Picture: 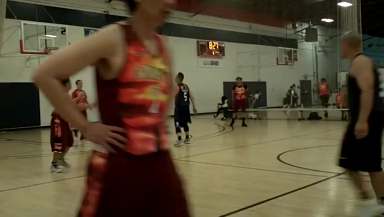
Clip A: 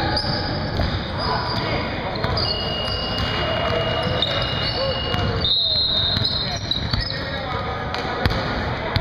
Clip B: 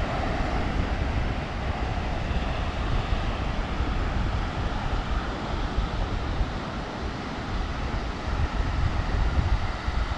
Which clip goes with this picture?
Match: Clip A